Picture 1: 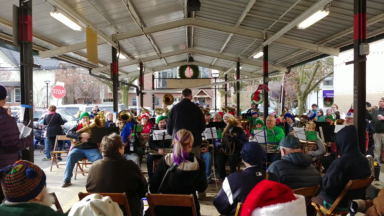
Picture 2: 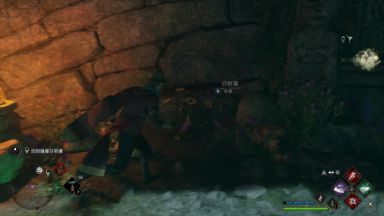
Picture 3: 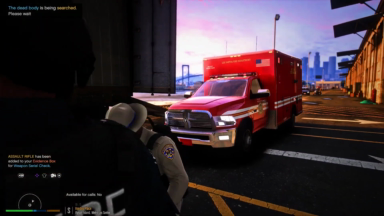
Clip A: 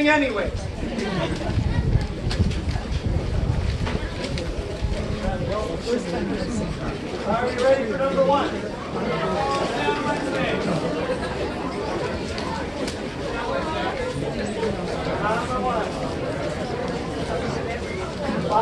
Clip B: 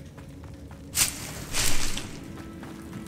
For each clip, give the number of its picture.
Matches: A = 1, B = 2